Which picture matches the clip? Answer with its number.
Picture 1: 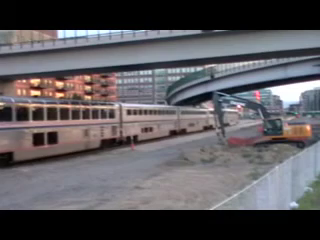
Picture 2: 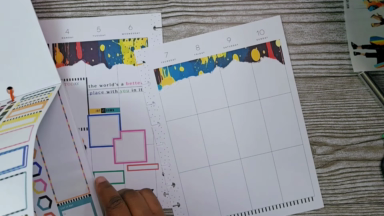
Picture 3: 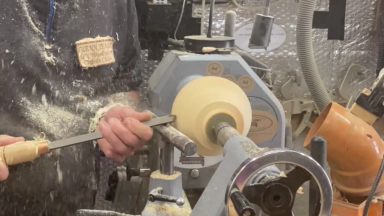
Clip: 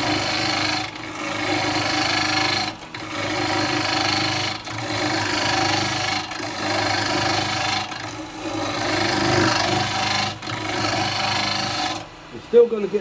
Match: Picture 3